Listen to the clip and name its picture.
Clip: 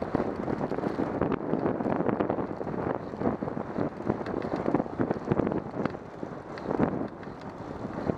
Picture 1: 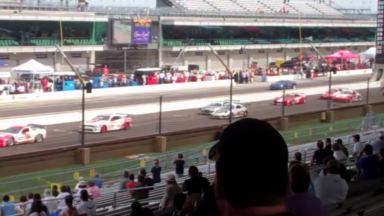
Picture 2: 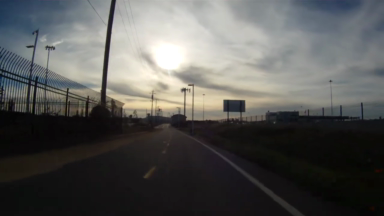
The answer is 2